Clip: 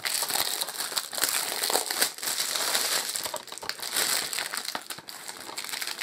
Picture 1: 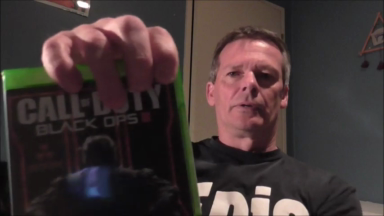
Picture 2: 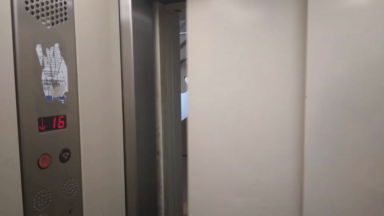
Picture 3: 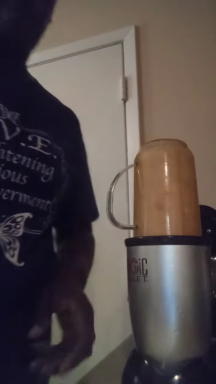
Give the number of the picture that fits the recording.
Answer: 1